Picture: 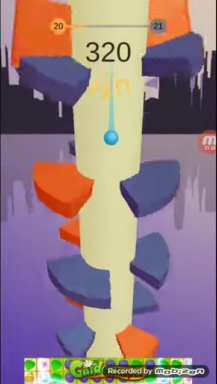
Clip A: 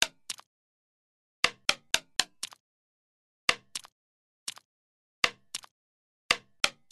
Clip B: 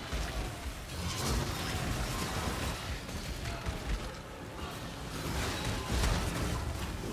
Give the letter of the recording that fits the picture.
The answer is A